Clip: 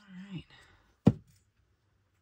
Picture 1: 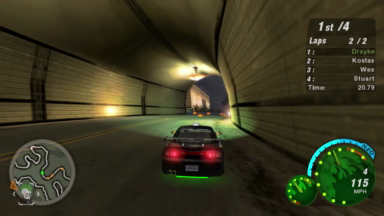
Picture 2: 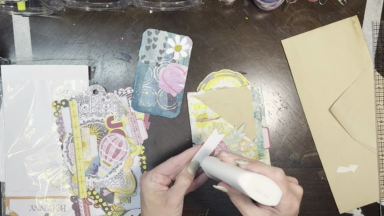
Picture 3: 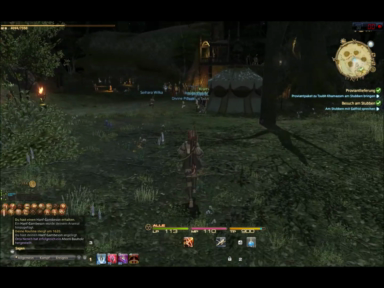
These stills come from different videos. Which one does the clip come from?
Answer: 2